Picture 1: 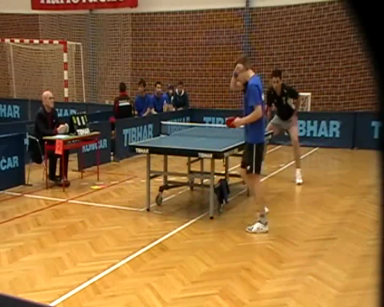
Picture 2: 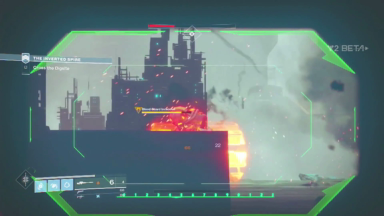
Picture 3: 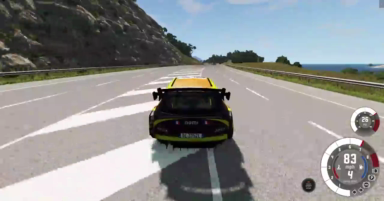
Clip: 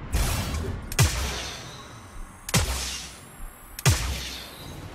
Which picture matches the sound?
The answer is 2